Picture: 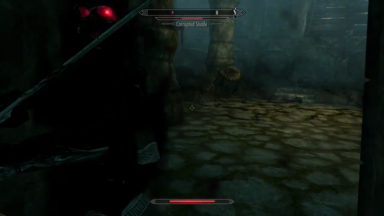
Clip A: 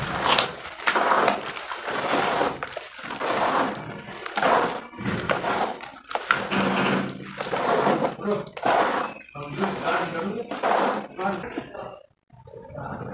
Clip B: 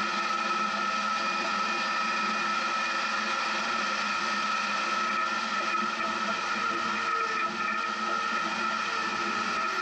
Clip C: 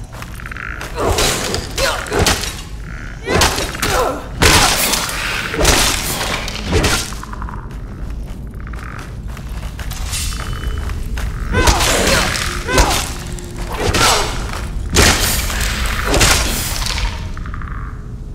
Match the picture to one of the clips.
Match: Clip C